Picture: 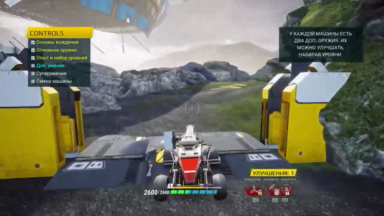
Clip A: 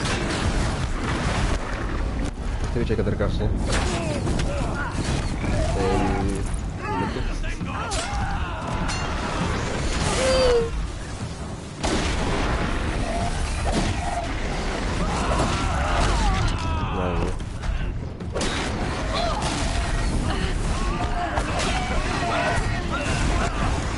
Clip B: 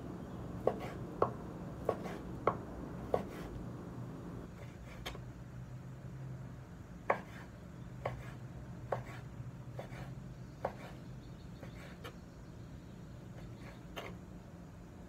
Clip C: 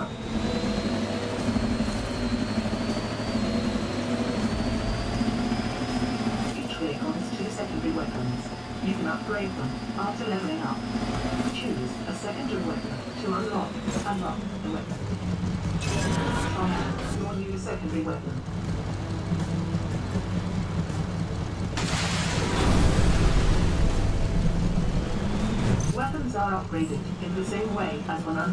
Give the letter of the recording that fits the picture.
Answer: C